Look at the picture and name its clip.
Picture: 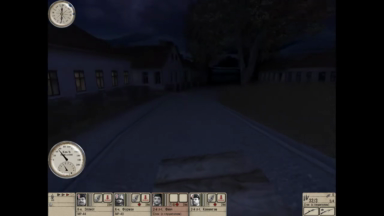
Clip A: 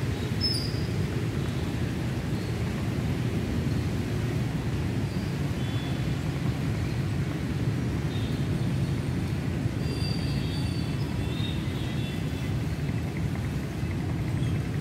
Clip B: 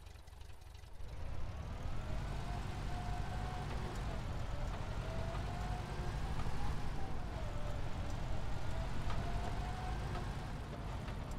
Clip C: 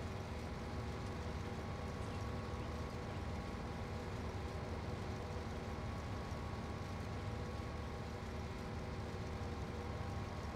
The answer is B